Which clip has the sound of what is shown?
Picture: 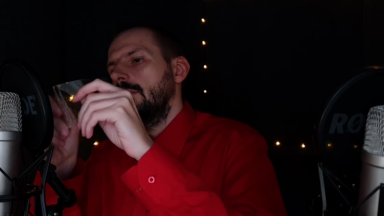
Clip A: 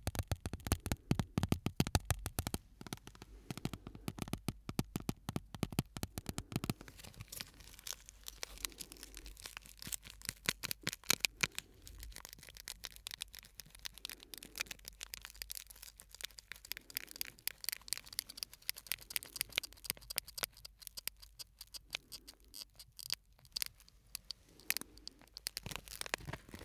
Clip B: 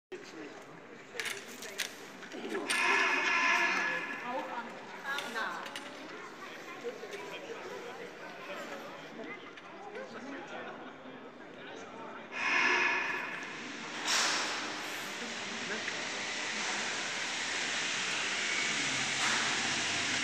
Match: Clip A